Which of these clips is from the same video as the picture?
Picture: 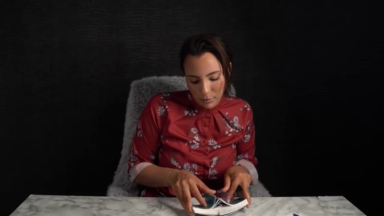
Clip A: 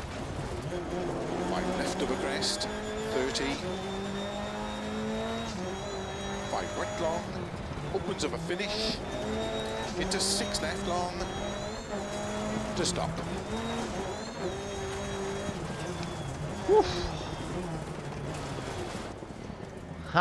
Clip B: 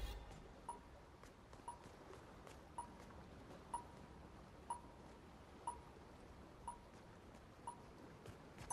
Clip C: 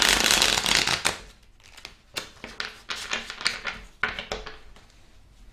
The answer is C